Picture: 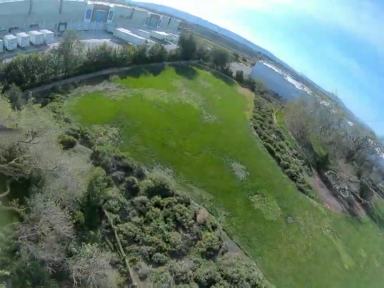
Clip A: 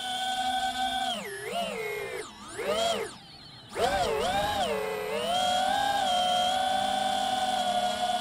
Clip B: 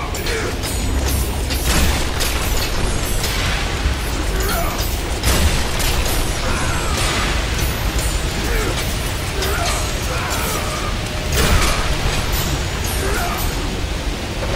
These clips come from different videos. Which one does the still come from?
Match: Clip A